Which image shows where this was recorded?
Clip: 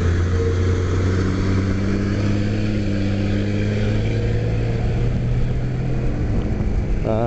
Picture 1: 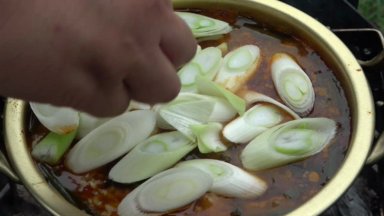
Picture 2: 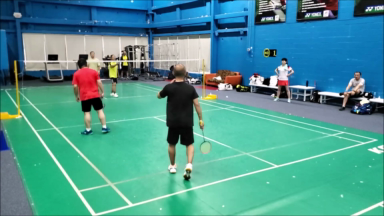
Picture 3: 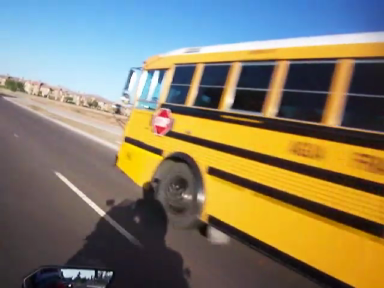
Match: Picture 3